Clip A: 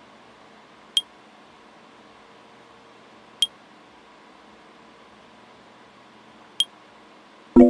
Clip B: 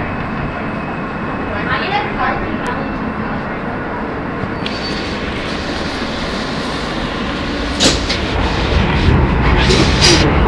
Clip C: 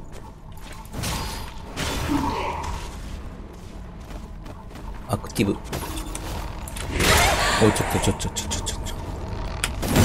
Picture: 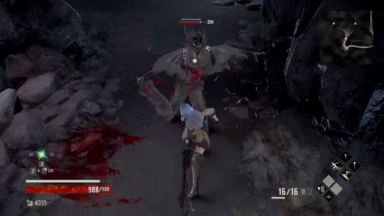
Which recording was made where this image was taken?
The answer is C